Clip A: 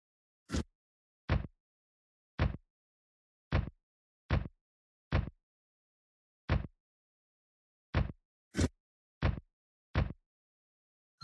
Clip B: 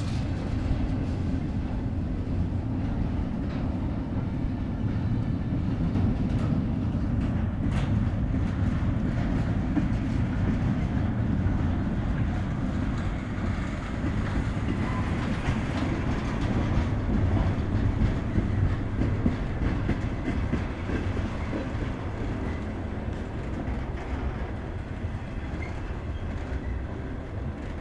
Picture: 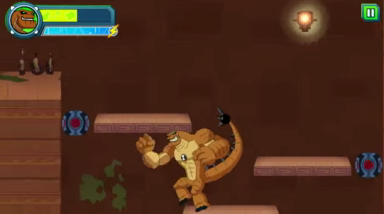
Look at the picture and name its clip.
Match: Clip A